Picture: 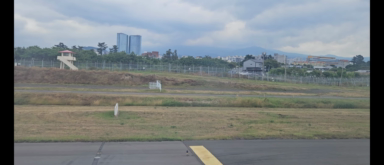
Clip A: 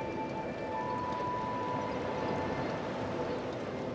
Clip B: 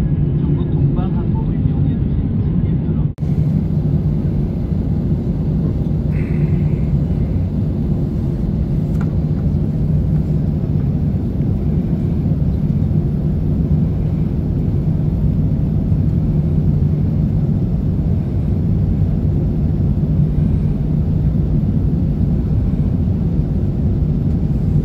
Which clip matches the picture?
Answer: B